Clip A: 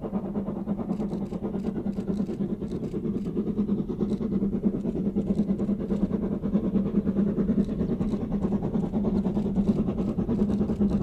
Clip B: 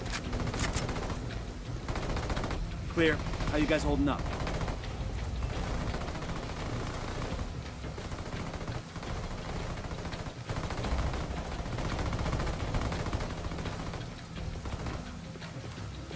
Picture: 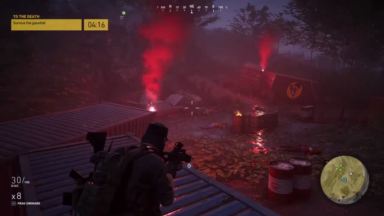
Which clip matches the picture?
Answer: B